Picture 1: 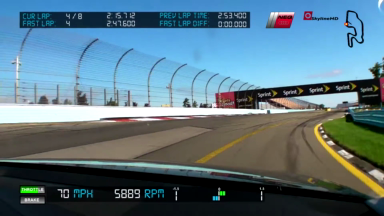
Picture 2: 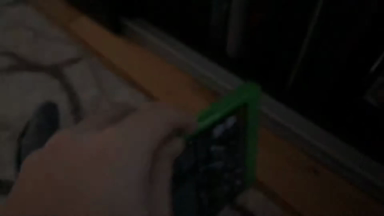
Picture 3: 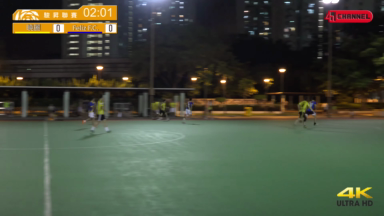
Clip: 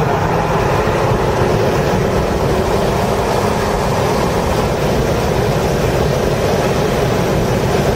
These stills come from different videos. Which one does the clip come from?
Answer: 1